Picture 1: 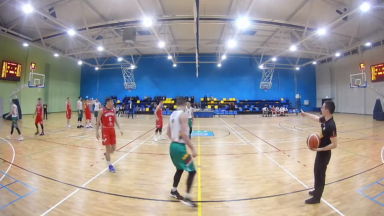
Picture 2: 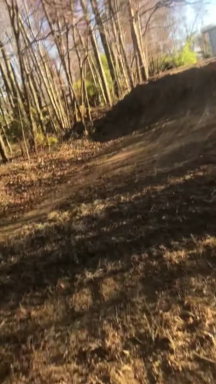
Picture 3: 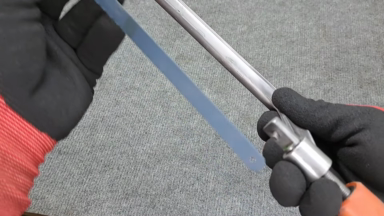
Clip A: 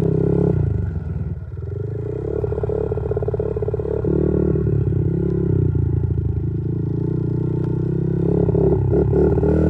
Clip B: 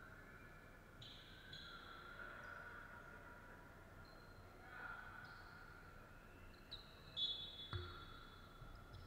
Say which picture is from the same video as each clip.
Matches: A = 2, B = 1